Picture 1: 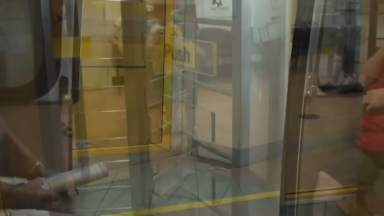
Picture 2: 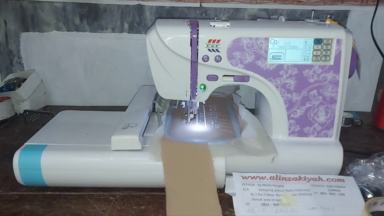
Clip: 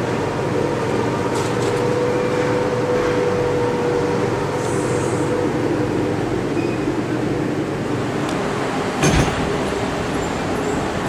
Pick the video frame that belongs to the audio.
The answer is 1